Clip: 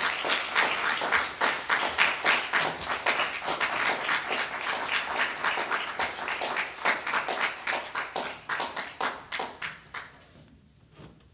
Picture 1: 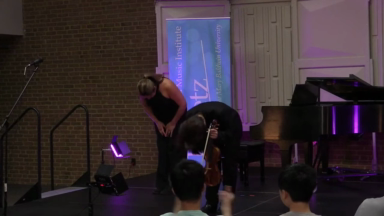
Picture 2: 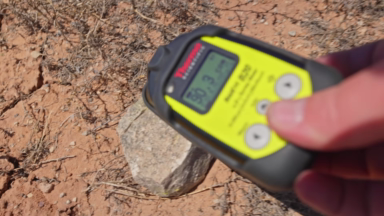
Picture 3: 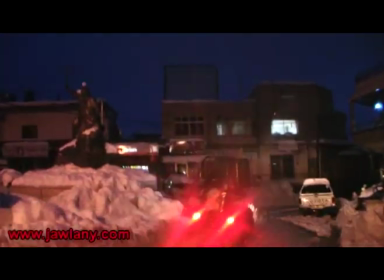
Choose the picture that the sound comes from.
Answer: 1